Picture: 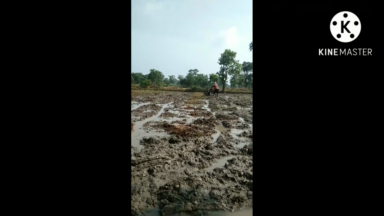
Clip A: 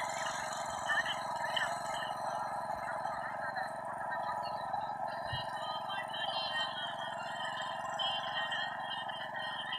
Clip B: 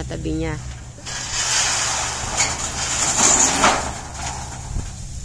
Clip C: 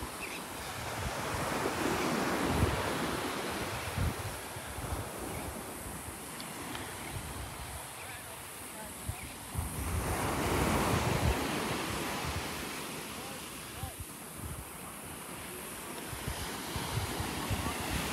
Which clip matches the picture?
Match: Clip A